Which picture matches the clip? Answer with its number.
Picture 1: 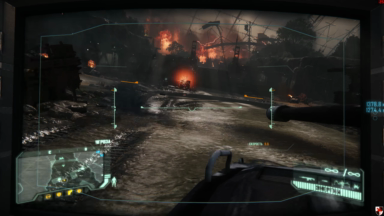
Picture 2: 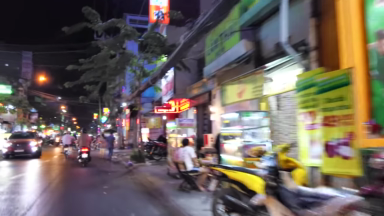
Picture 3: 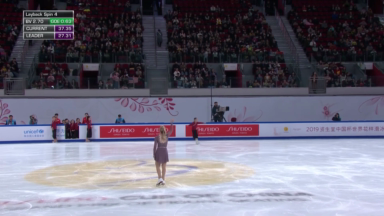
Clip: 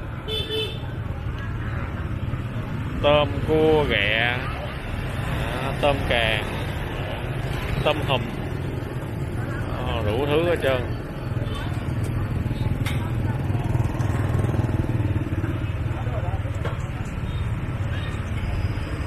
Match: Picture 2